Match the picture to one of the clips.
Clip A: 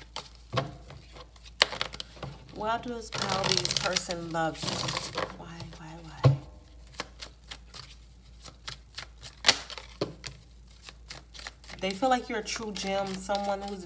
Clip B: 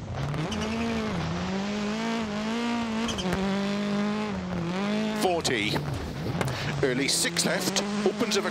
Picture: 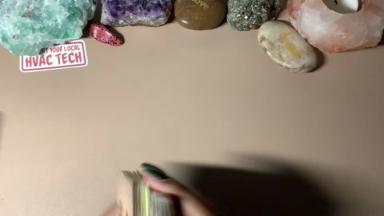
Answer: A